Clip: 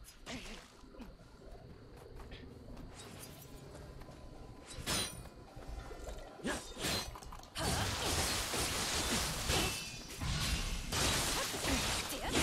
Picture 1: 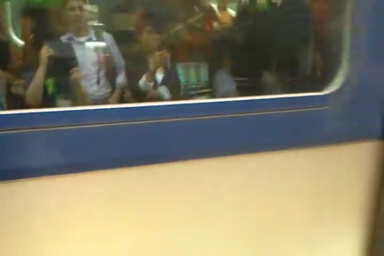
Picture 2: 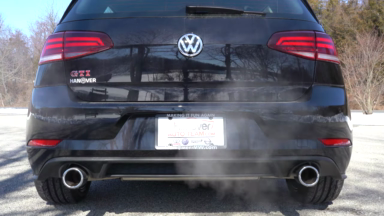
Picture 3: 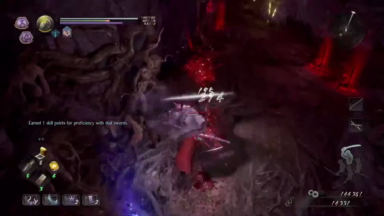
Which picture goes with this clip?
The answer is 3